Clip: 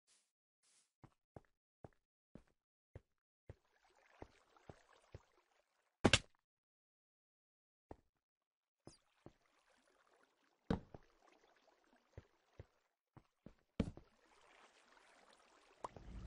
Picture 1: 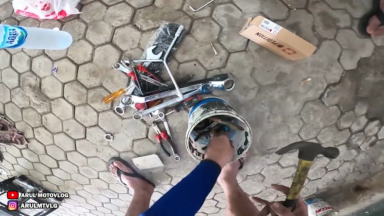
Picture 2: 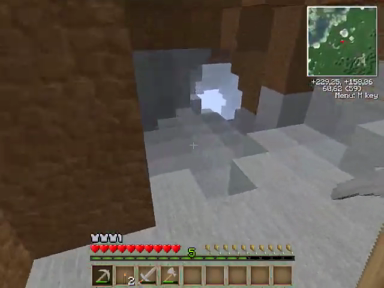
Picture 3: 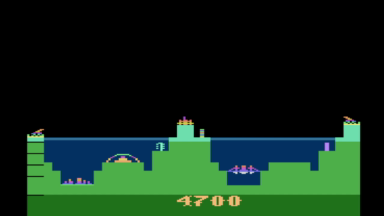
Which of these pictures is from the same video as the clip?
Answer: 2